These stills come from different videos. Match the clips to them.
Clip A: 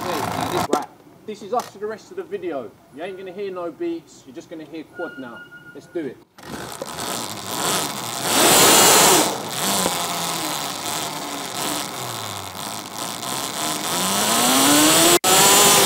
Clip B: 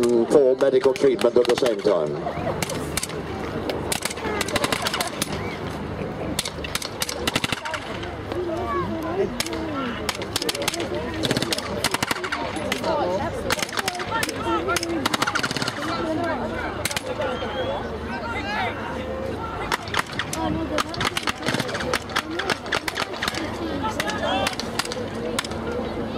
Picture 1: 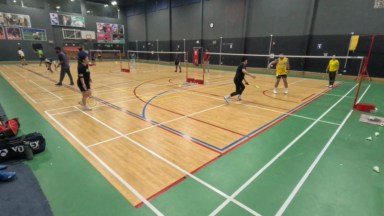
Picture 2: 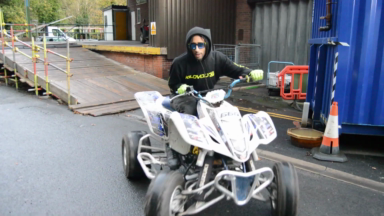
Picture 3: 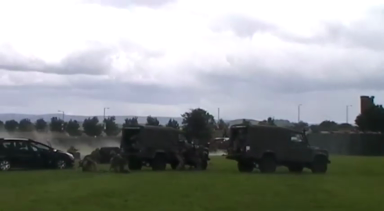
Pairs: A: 2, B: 3